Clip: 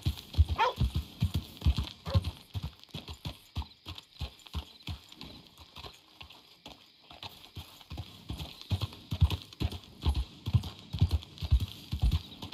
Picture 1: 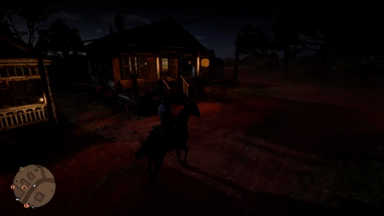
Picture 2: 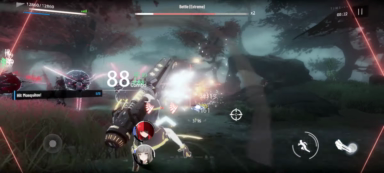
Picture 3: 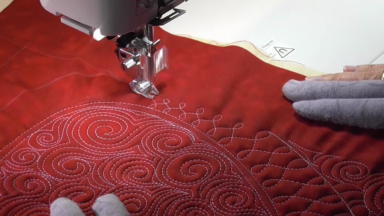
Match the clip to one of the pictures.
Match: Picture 1